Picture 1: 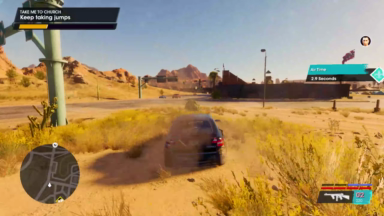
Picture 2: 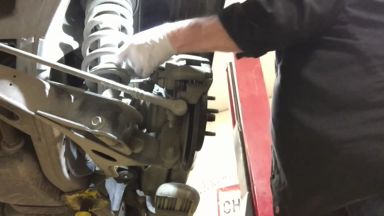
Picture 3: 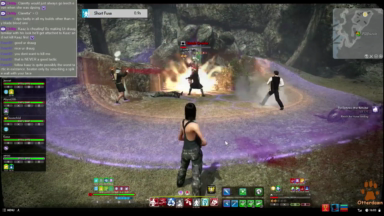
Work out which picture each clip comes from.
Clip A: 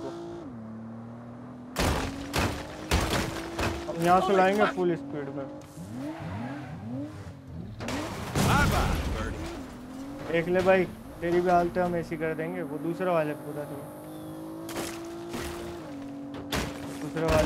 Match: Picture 1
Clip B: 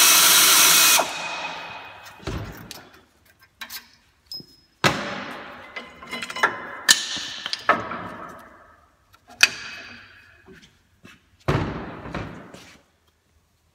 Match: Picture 2